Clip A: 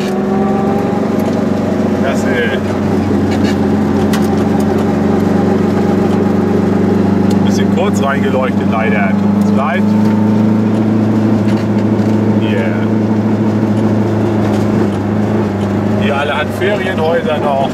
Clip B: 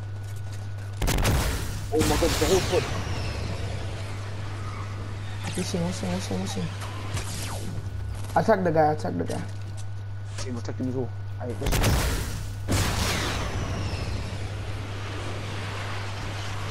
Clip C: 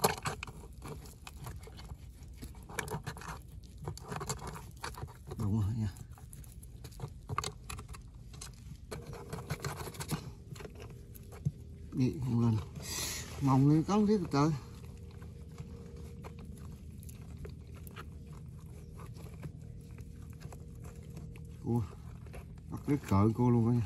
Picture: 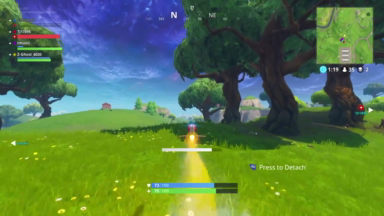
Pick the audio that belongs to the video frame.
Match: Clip B